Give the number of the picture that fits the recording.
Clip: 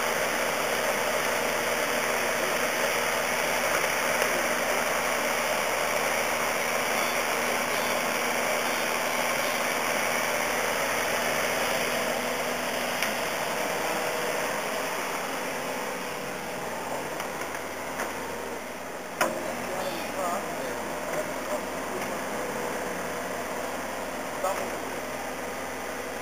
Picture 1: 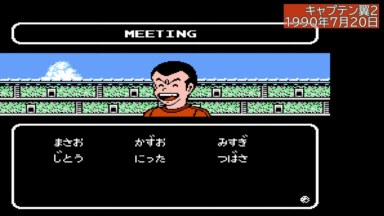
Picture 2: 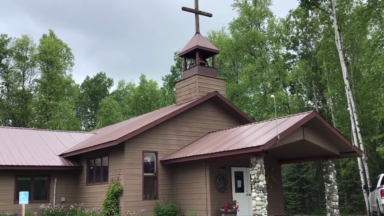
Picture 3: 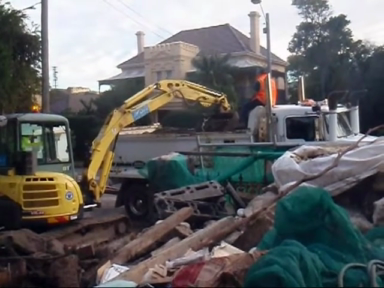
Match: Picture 3